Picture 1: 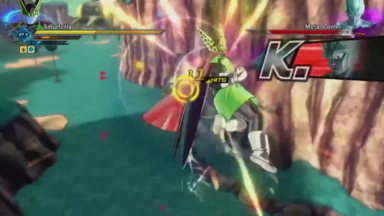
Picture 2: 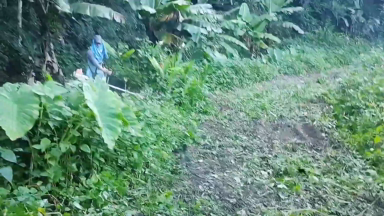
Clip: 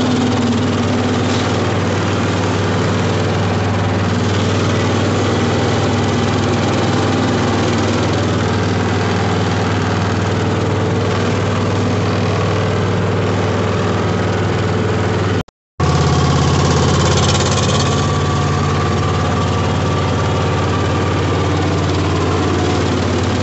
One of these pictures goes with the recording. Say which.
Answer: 2